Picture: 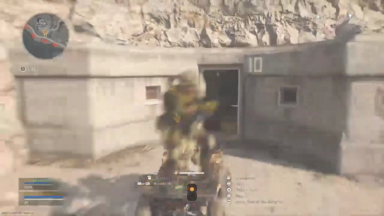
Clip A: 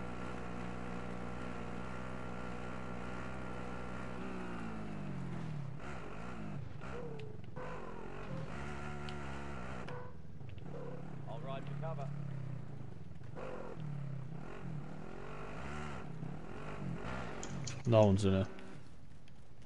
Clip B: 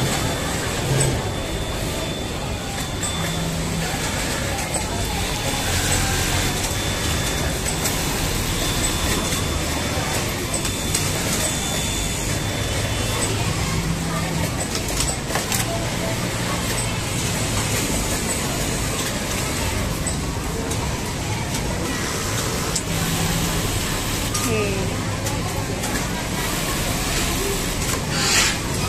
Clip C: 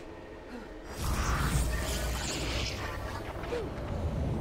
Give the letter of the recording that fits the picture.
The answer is A